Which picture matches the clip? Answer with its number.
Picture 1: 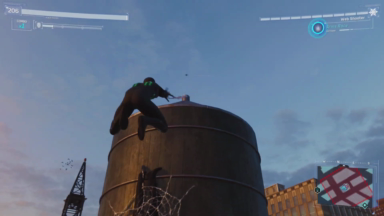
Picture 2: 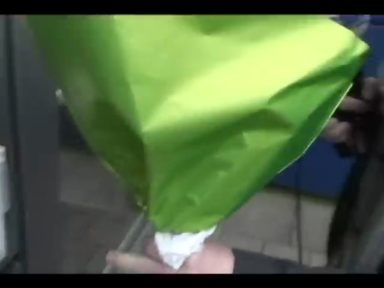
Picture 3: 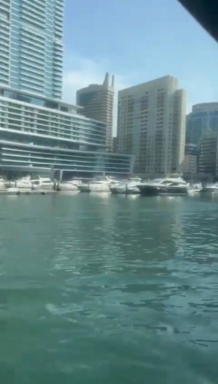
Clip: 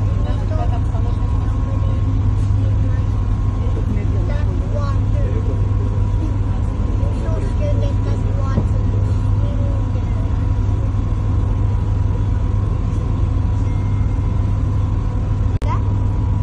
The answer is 3